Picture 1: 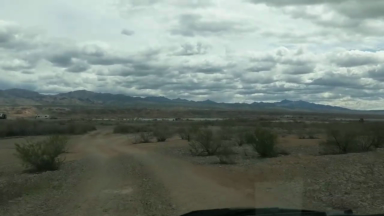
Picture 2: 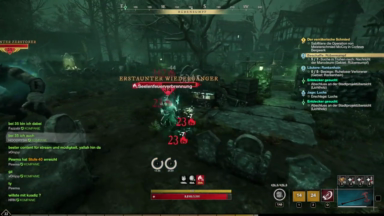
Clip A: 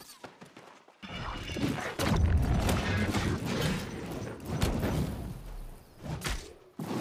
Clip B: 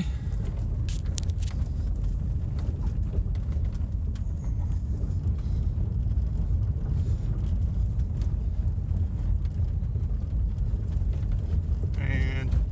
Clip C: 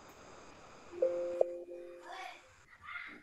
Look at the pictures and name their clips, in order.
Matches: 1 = B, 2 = A